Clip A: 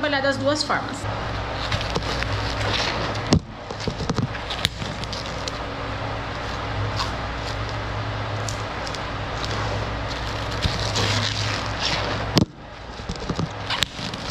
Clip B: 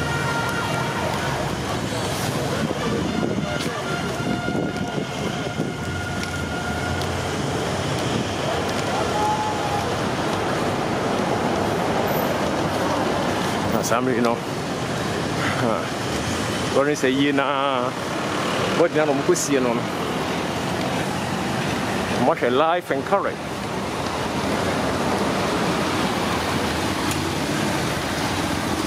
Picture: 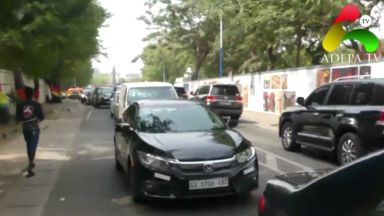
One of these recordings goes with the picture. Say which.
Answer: B